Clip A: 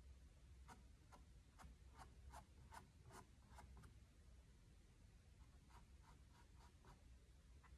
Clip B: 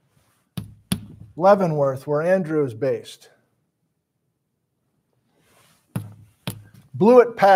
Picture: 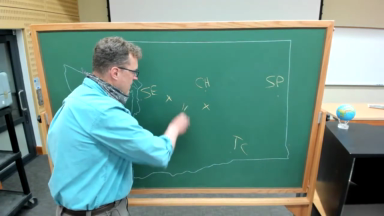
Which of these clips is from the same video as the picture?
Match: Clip B